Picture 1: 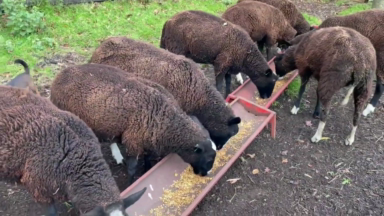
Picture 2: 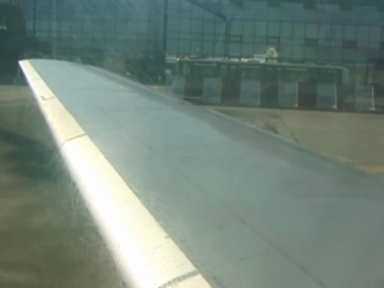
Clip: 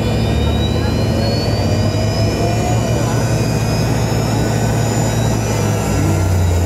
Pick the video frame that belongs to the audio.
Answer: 2